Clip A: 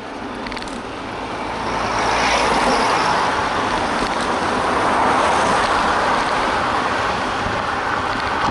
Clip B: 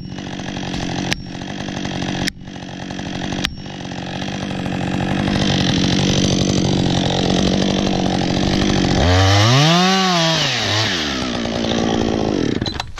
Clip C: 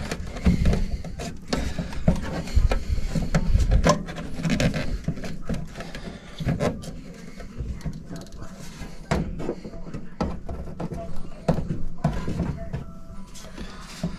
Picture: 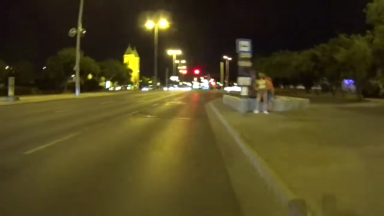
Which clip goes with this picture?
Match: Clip A